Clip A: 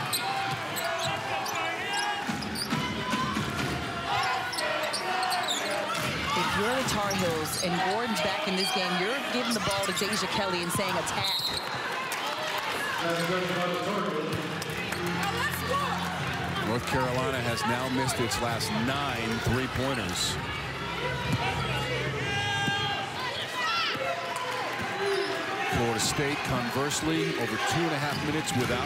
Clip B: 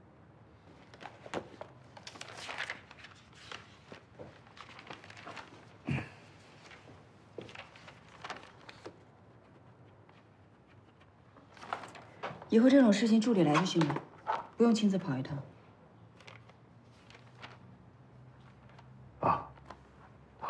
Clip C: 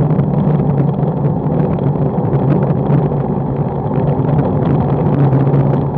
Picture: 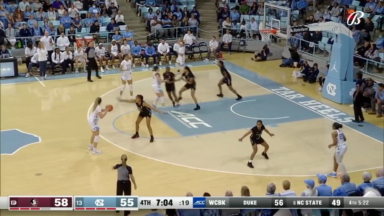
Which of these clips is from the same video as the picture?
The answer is A